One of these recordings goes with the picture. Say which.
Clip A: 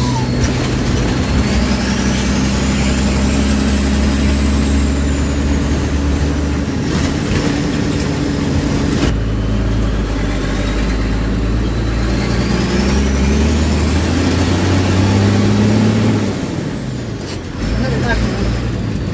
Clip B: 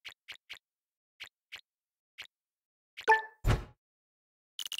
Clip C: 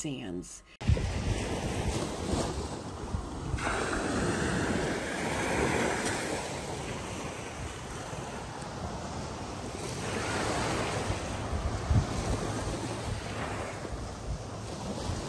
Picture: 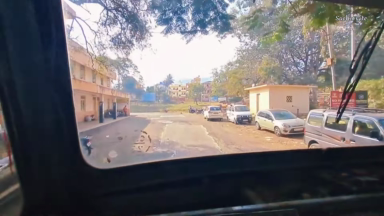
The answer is A